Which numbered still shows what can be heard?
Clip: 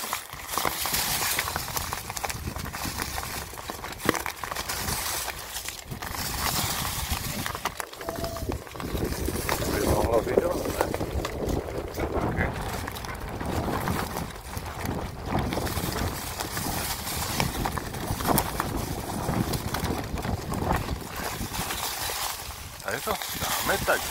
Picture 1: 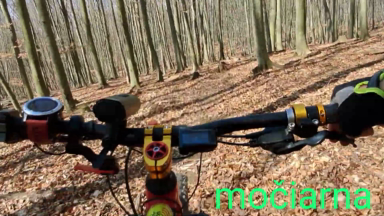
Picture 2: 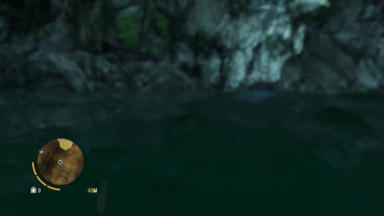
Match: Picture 1